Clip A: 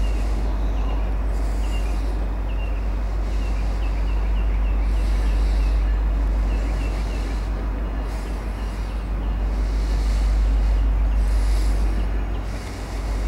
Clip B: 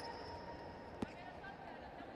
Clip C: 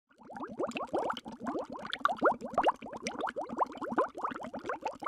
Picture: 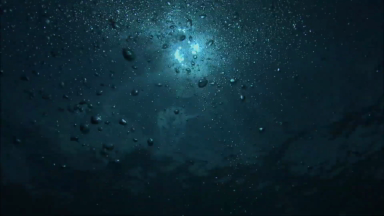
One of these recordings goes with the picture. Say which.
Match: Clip C